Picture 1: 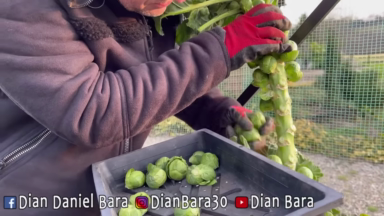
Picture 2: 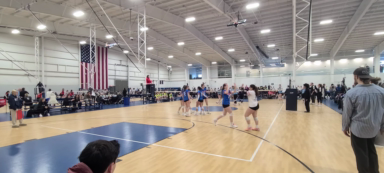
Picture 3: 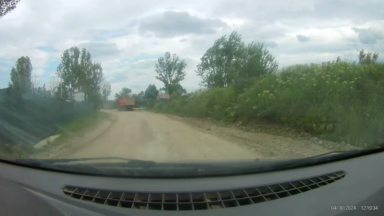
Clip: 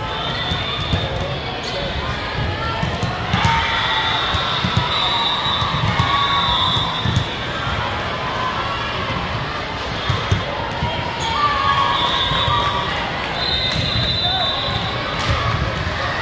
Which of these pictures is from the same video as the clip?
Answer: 2